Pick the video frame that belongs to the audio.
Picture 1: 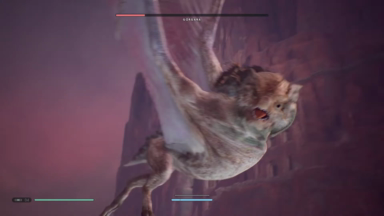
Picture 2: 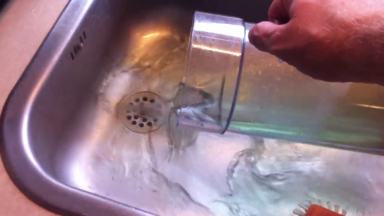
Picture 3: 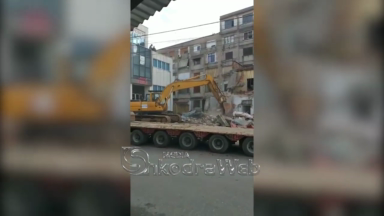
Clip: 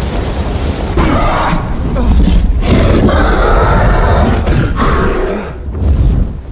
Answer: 1